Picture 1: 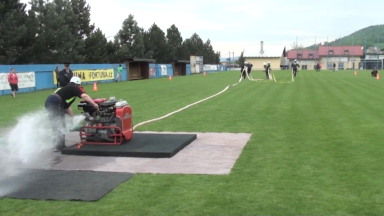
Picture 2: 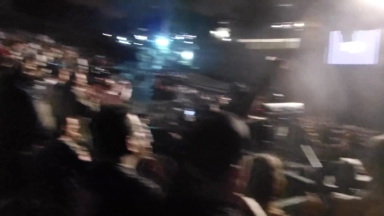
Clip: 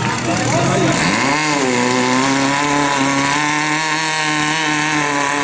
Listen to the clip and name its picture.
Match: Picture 1